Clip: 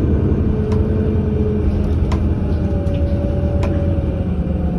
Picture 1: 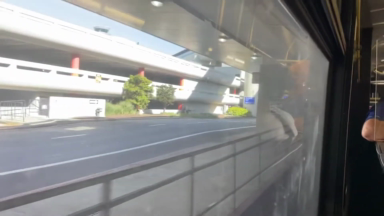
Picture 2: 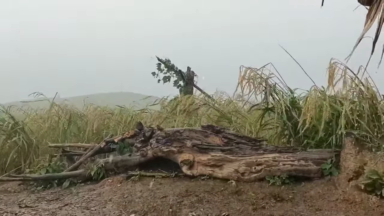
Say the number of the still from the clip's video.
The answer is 1